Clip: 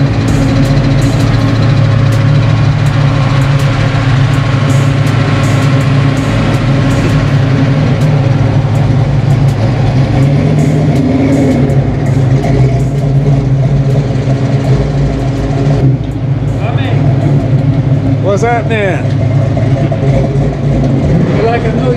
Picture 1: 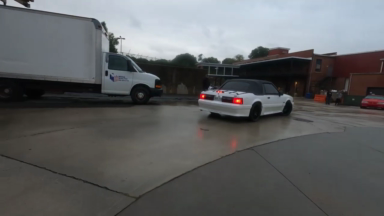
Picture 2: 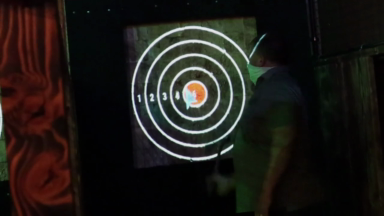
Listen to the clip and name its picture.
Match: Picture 1